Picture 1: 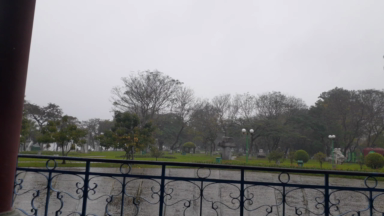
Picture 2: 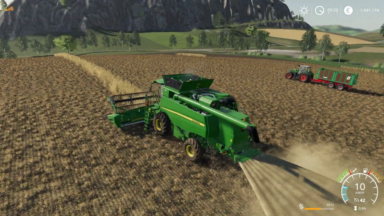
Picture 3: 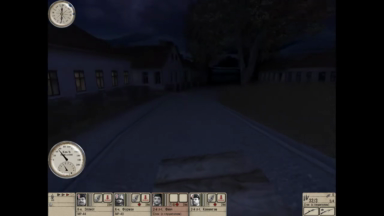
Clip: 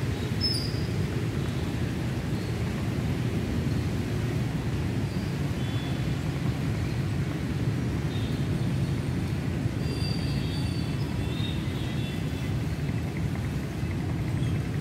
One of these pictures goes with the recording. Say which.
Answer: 1